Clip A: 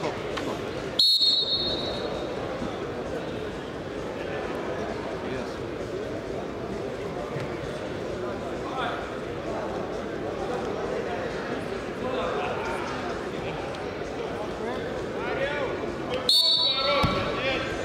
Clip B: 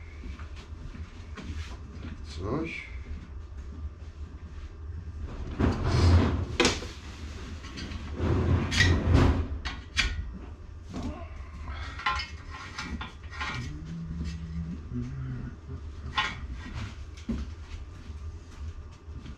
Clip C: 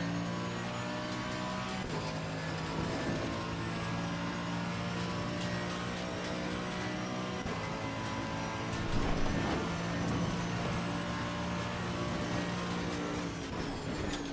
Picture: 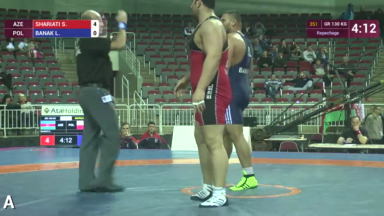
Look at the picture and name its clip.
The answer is A